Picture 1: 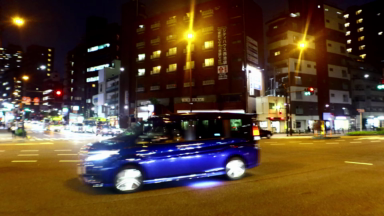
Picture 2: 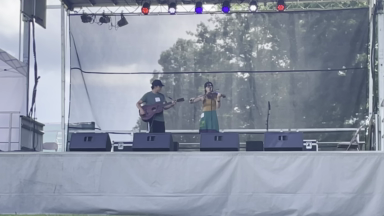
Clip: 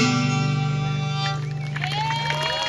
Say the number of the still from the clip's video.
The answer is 2